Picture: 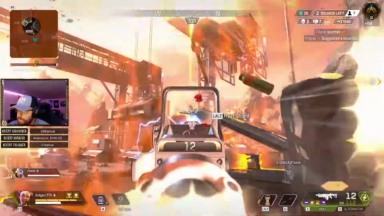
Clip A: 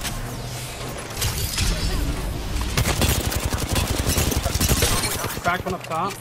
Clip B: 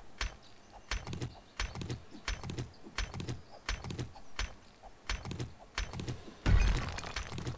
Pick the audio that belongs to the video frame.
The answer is A